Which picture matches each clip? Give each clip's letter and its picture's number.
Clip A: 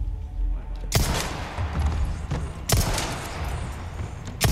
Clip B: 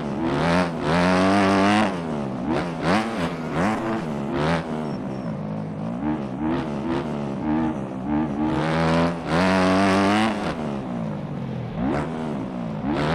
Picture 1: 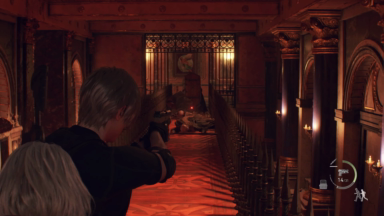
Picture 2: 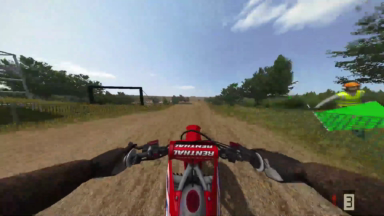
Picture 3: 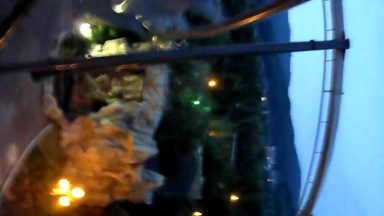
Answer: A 1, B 2